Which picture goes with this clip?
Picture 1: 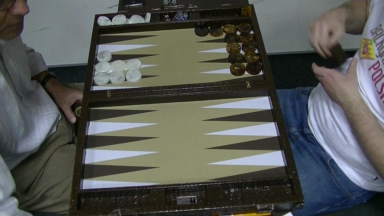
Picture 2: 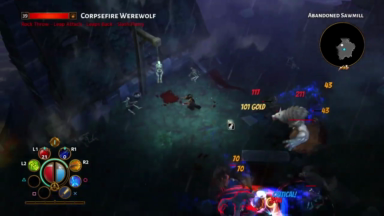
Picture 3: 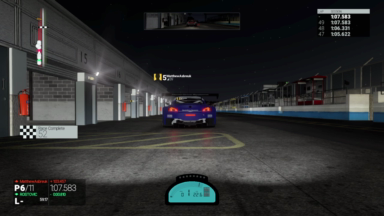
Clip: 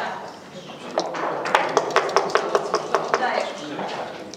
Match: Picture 1